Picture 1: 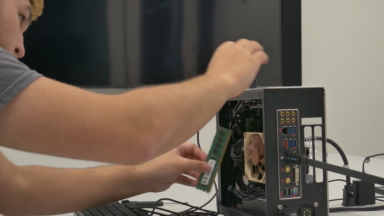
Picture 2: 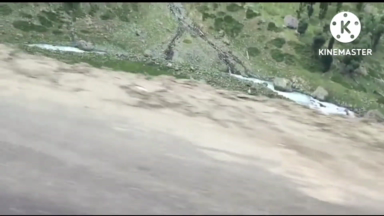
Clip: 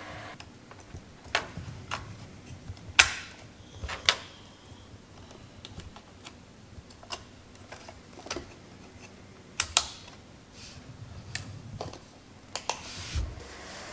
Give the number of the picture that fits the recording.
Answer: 1